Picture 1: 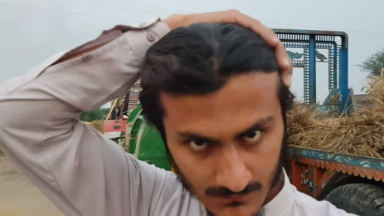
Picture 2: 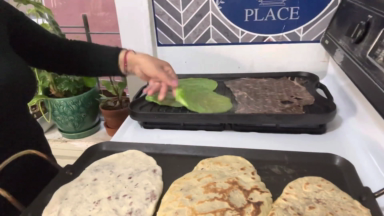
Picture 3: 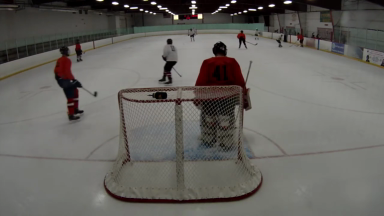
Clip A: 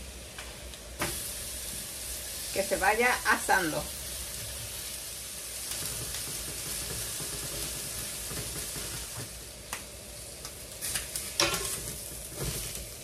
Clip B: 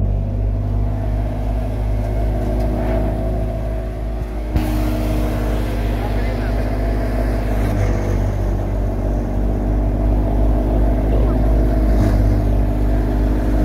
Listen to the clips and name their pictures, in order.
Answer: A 2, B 1